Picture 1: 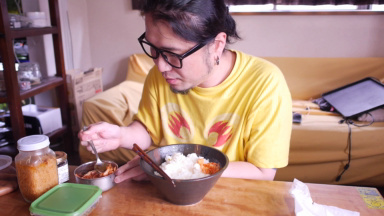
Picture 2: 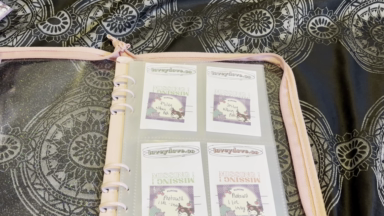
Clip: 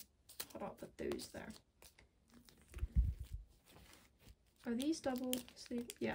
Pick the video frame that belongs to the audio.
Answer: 2